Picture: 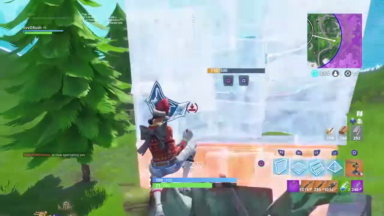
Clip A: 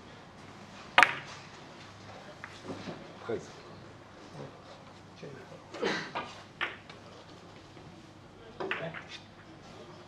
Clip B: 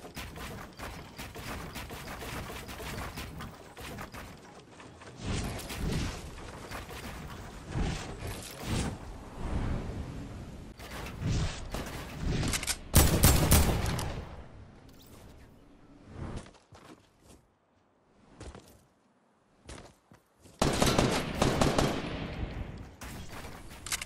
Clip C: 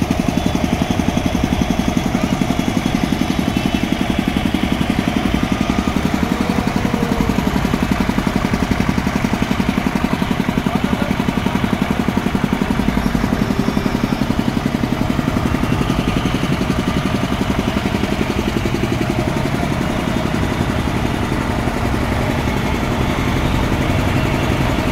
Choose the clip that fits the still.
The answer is B